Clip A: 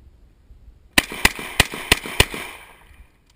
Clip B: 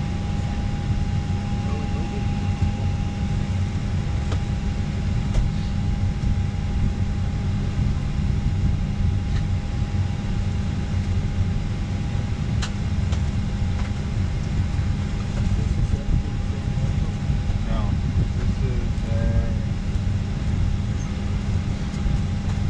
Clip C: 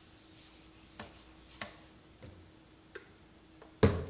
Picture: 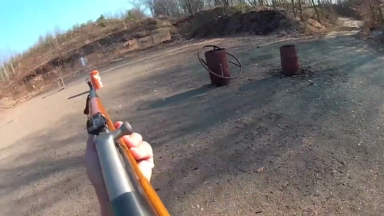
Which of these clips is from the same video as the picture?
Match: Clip A